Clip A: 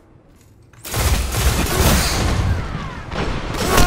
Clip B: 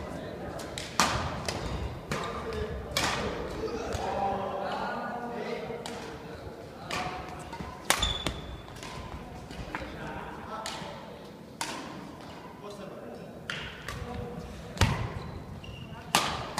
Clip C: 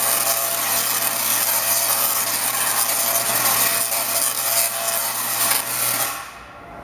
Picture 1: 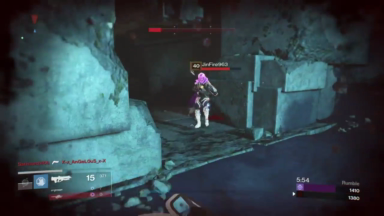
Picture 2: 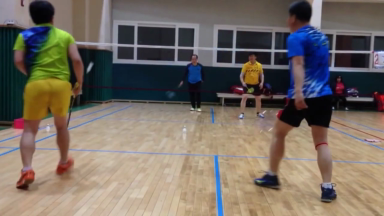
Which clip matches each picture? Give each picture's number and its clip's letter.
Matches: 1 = A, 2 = B